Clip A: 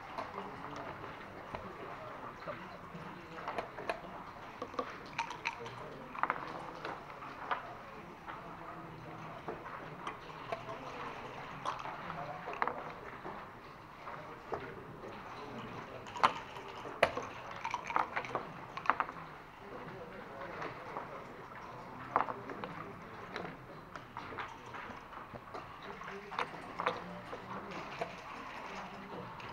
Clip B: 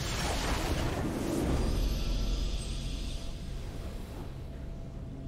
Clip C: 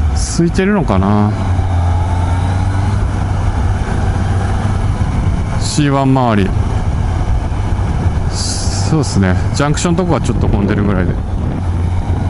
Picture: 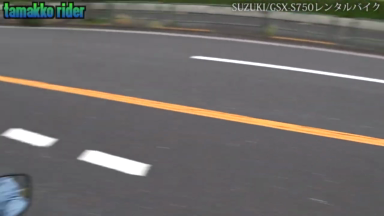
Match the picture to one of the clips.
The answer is C